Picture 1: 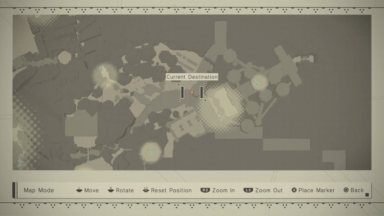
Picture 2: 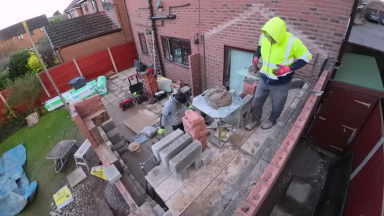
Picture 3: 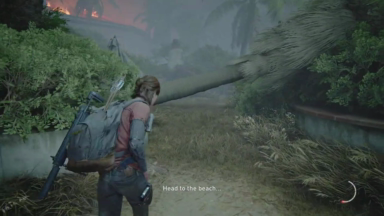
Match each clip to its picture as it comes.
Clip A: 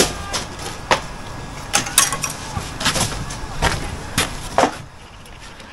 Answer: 2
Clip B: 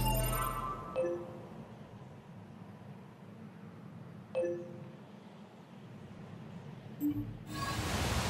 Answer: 1